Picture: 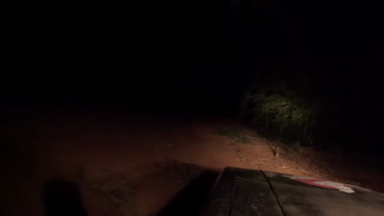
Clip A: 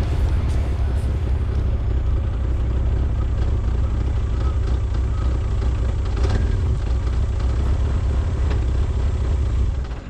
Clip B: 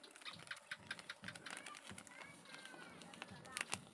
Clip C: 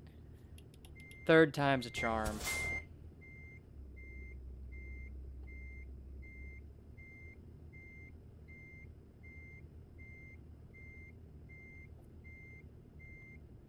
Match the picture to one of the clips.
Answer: A